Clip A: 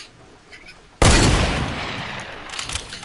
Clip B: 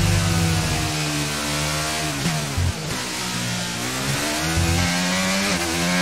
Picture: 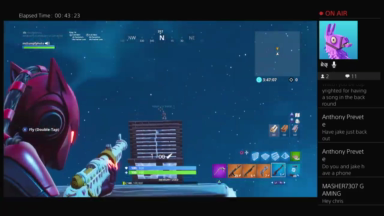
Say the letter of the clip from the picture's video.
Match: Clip A